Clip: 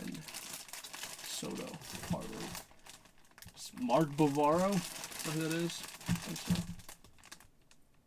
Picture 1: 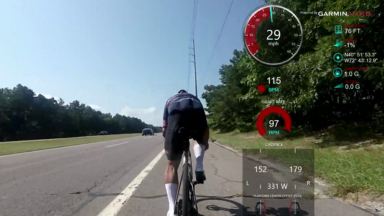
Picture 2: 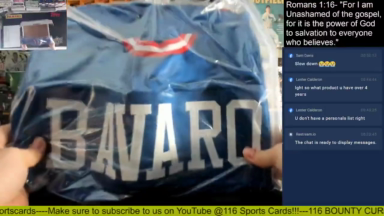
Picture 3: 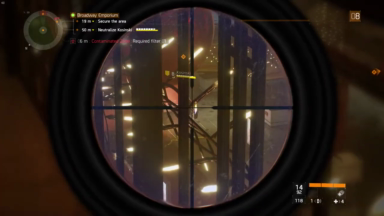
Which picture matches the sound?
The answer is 2